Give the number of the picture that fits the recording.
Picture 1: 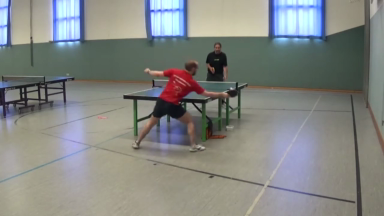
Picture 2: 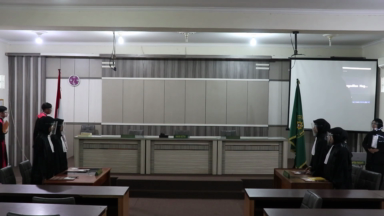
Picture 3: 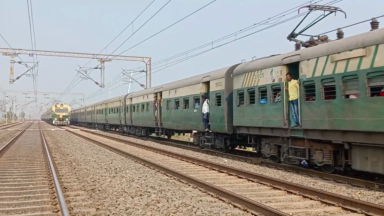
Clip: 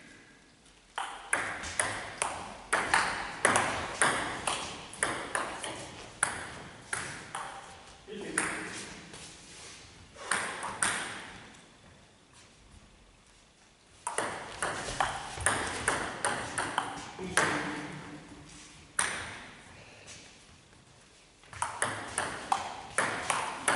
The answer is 1